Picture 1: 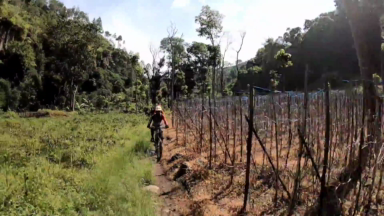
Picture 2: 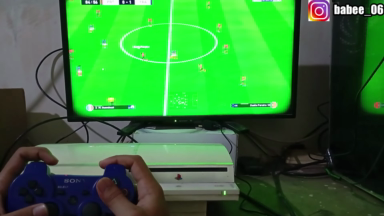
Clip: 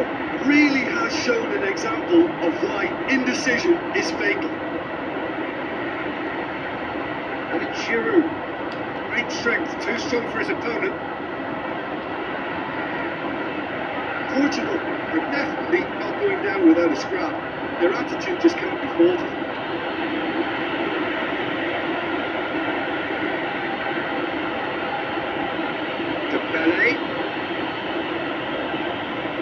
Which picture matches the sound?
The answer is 2